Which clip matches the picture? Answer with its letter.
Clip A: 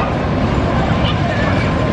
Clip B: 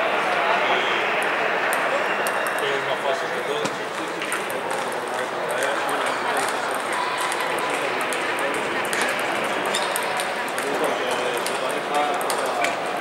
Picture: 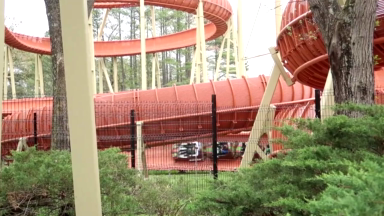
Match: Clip A